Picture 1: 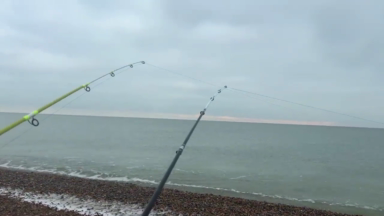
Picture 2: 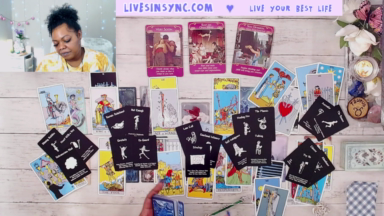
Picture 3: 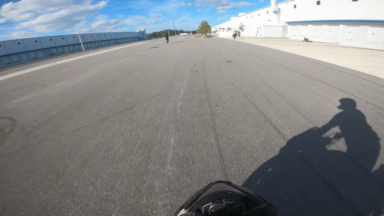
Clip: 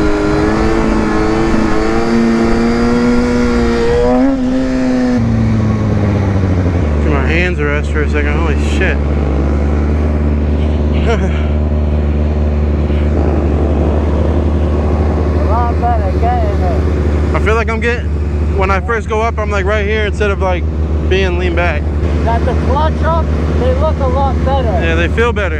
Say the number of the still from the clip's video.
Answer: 3